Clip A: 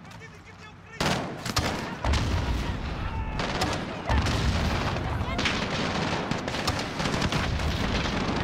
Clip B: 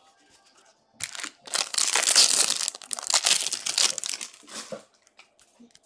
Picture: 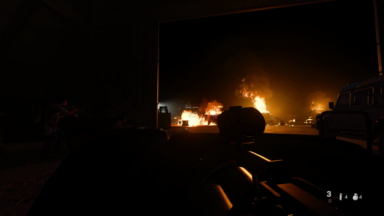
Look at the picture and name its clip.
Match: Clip A